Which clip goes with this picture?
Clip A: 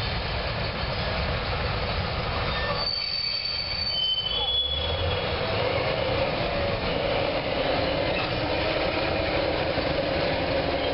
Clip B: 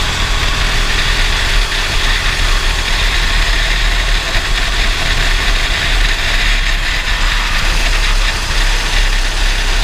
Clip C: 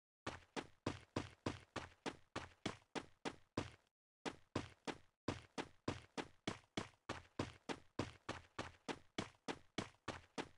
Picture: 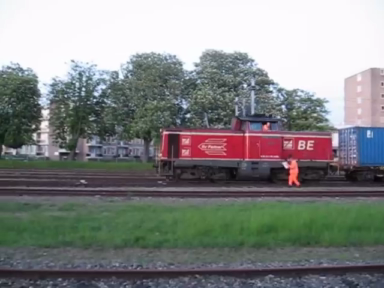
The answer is A